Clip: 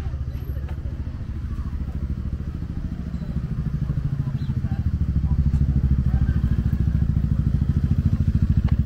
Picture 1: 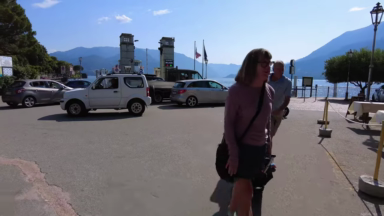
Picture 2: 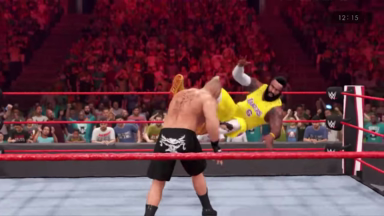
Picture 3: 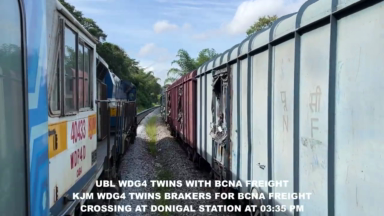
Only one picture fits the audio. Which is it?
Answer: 1